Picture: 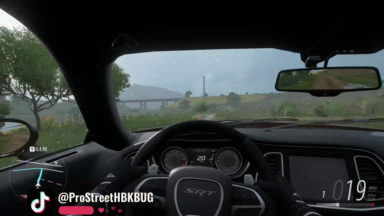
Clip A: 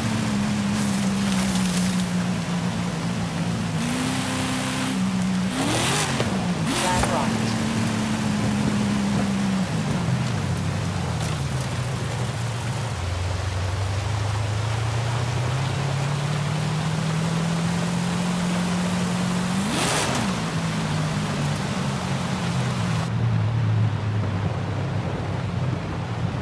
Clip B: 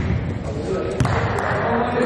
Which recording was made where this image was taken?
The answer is A